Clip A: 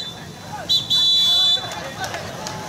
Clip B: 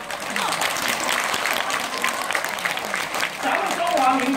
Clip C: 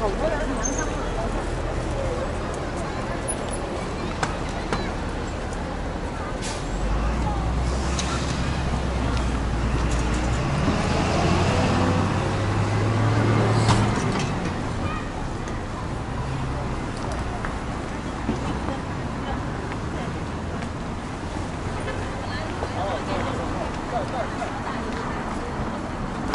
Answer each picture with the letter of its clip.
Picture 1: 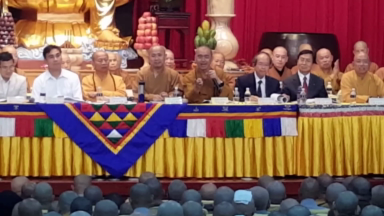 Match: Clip B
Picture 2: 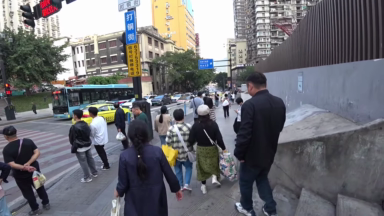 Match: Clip C